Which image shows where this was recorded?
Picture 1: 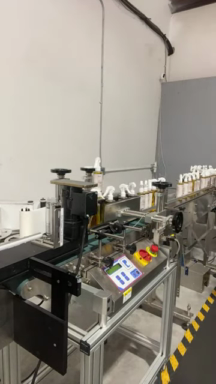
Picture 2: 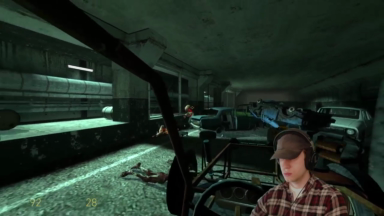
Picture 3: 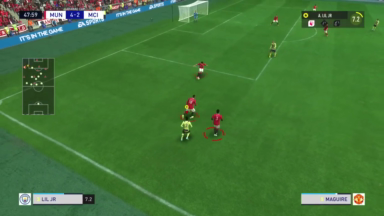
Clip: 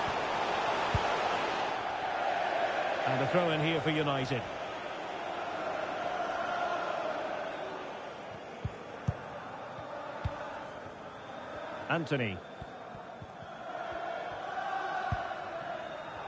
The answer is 3